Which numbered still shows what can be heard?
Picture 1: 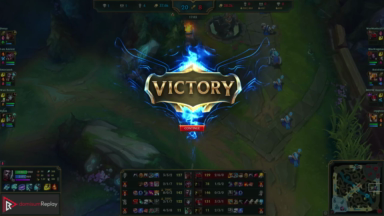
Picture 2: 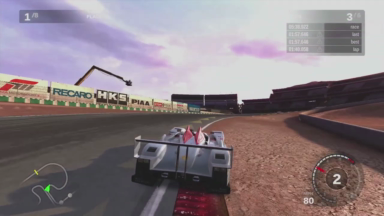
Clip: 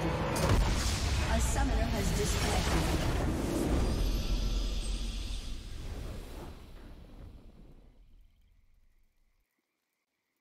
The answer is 1